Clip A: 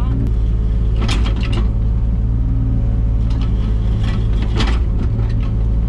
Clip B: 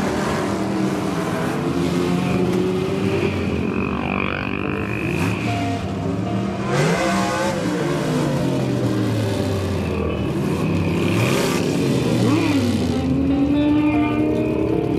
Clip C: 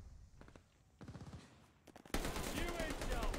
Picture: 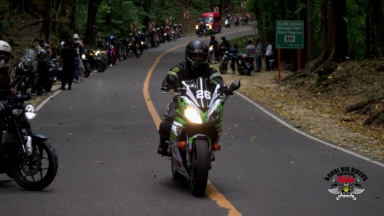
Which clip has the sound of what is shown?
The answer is B